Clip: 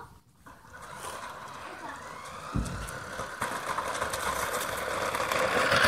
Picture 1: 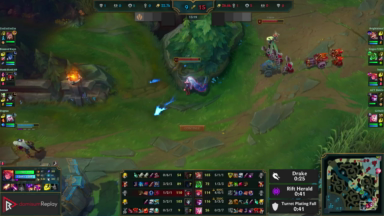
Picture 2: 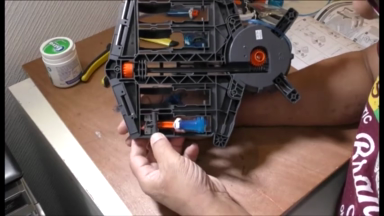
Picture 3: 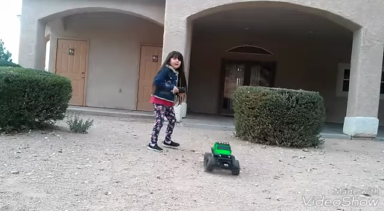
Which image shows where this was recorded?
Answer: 3